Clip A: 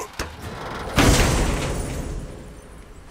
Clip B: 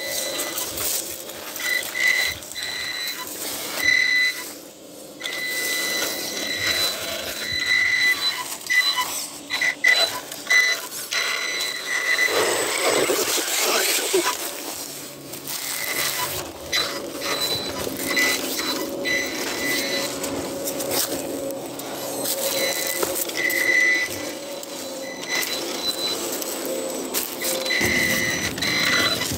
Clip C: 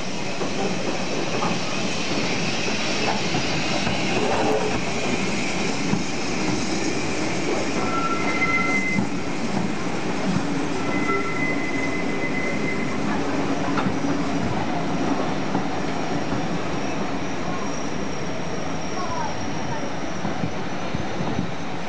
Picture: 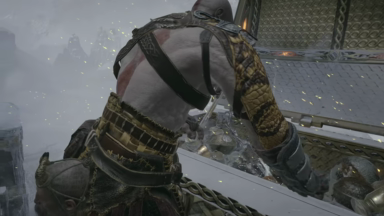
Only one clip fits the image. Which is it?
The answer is A